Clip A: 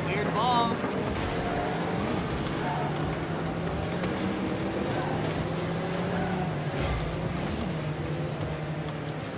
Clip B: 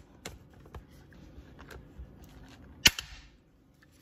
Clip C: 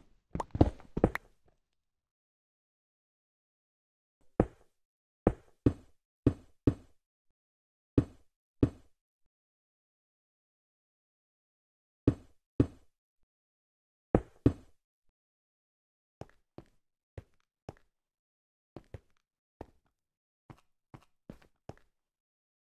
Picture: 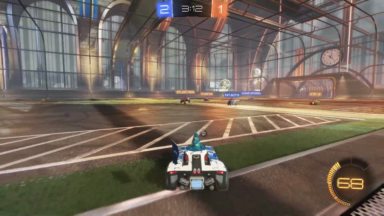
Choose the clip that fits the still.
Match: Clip A